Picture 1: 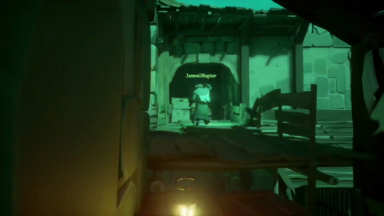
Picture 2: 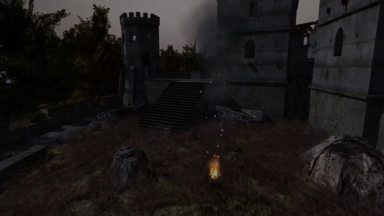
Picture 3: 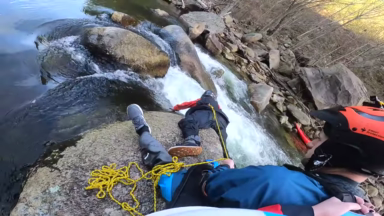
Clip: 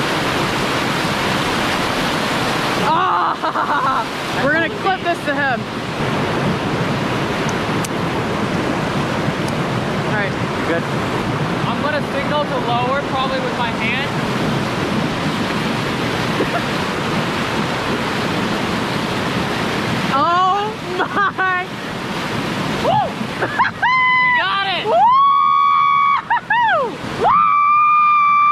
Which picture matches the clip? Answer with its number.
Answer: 3